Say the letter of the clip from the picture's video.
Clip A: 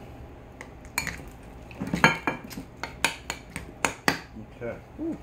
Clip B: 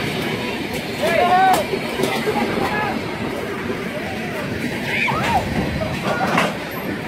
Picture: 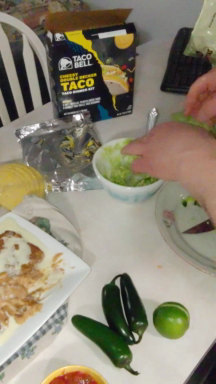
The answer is A